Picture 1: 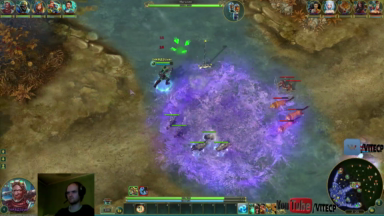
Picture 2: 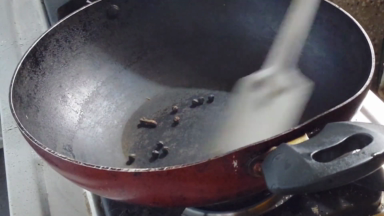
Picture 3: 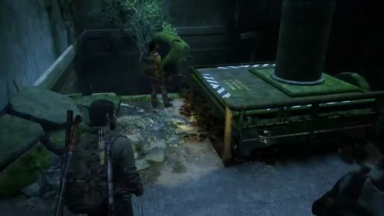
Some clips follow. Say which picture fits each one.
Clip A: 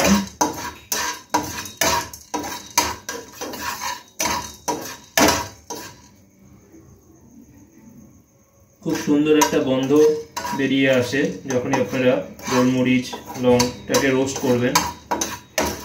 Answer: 2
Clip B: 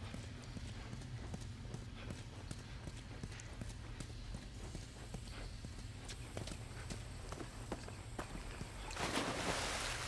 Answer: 3